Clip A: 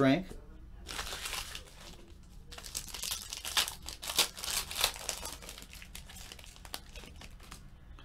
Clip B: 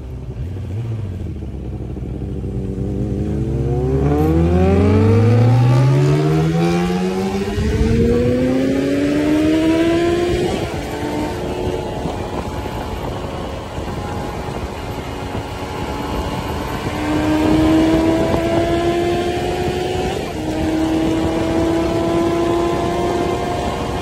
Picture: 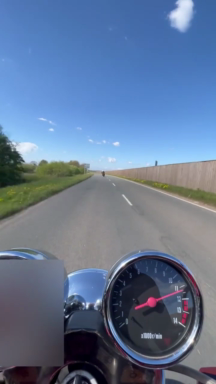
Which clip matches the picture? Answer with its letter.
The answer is B